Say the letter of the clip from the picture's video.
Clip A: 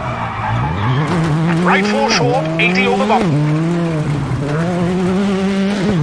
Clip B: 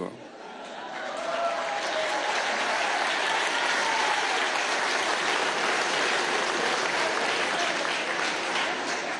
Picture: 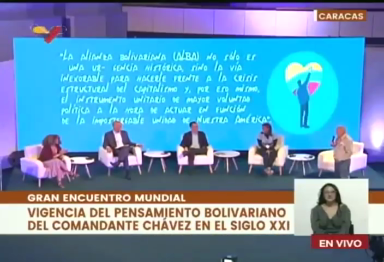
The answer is B